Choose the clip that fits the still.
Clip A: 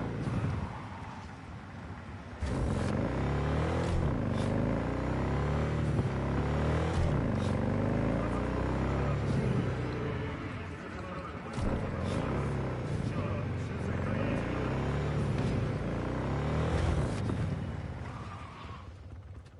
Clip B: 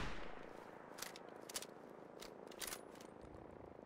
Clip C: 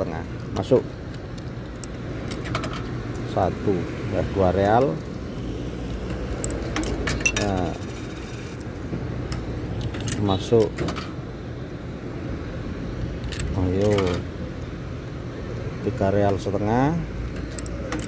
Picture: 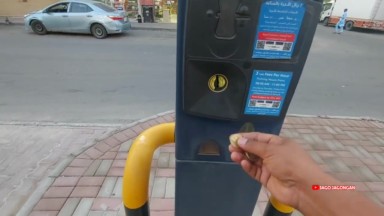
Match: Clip C